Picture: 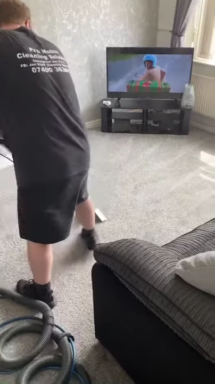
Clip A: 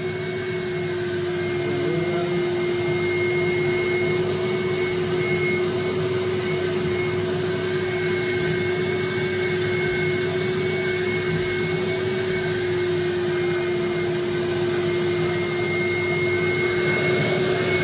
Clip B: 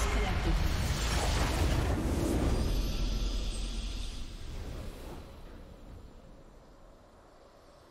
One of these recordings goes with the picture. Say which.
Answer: A